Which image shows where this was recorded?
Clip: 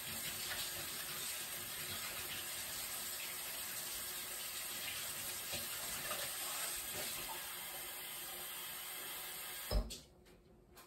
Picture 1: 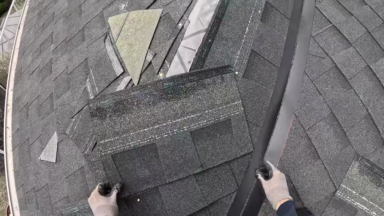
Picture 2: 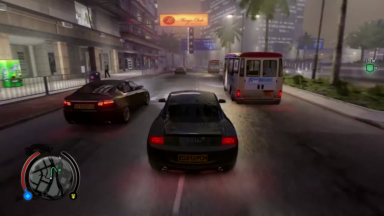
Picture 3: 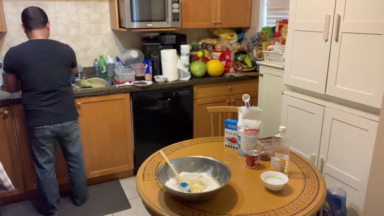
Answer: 3